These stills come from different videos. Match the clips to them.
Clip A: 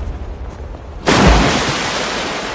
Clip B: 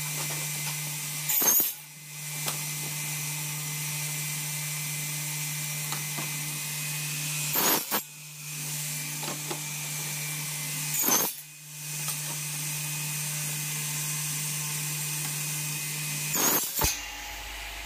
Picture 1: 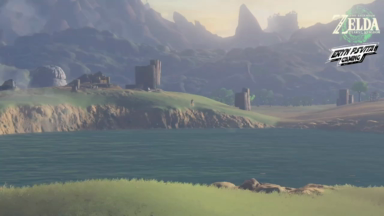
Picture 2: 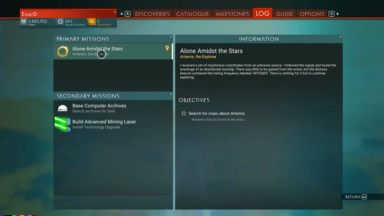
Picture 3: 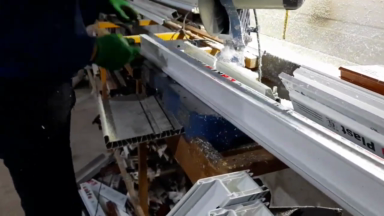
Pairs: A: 1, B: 3